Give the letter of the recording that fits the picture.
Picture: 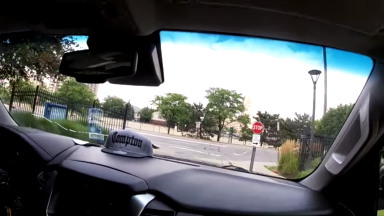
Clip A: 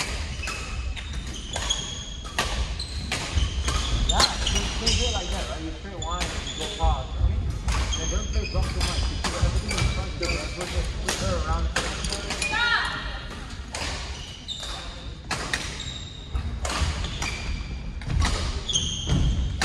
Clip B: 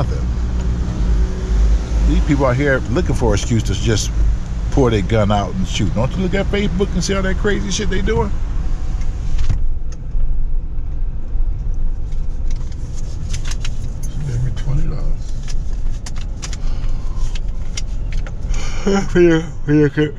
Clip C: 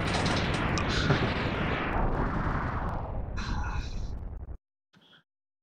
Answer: B